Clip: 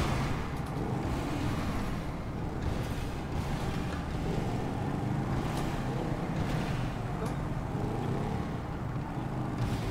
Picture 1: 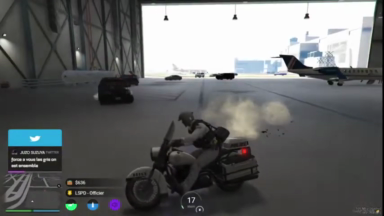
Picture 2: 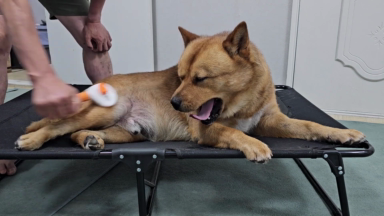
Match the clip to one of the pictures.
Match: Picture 1